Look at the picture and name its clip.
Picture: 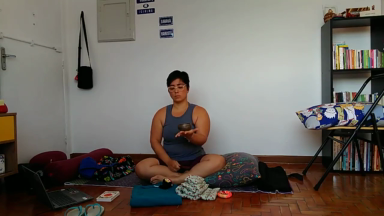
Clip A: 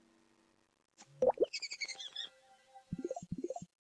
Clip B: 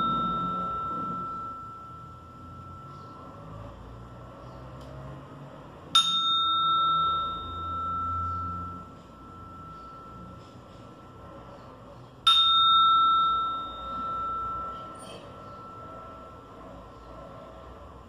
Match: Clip B